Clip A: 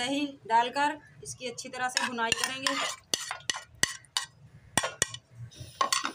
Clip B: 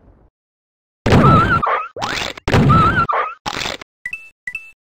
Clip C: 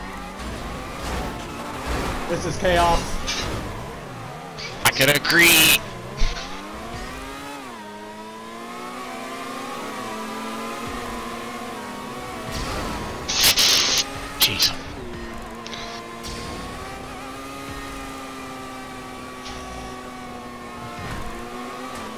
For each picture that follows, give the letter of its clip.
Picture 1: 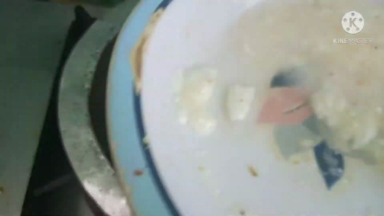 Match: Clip A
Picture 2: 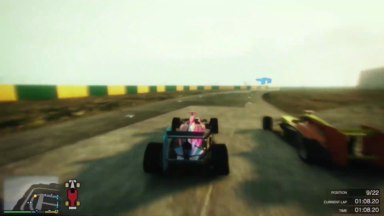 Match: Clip C